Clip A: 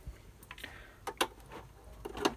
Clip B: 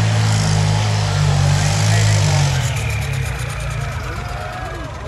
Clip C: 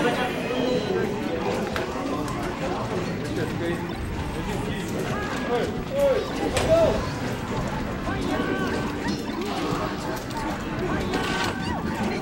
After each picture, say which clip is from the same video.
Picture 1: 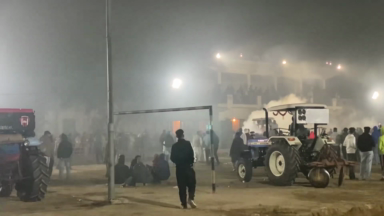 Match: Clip B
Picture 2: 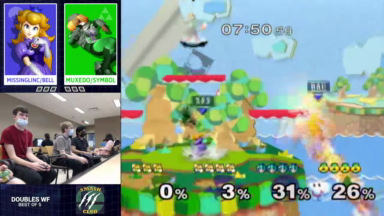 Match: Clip C